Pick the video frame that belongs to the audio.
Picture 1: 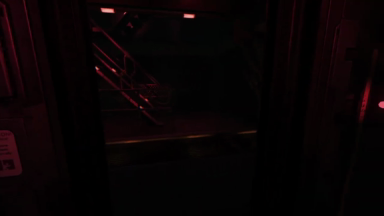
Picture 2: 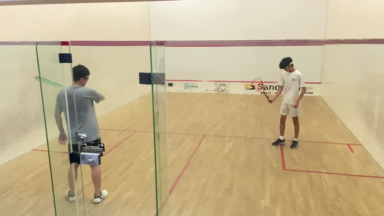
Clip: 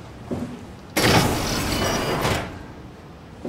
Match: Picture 1